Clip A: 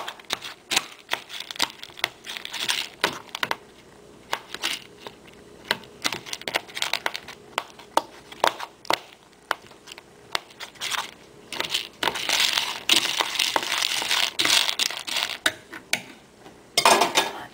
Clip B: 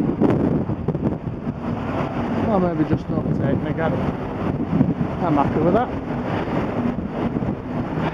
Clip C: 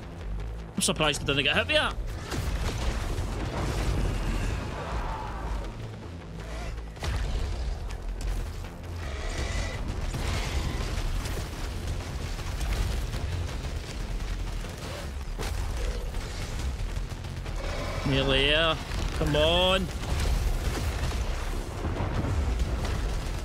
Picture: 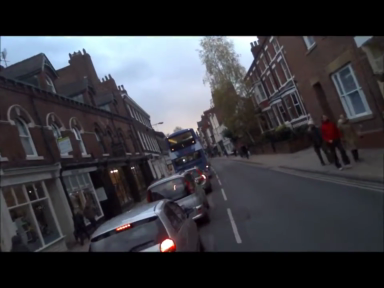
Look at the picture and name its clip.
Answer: B